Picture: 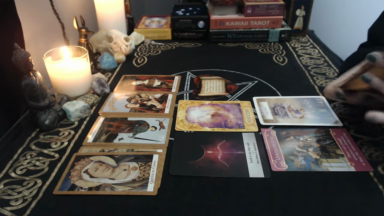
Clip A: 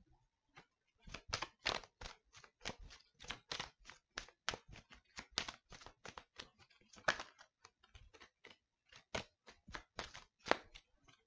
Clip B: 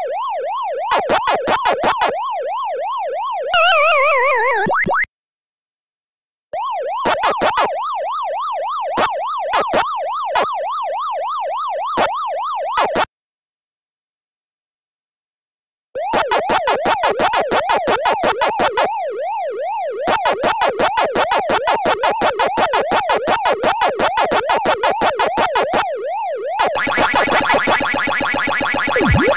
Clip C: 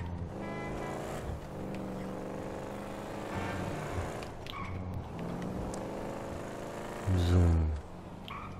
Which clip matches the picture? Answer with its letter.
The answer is A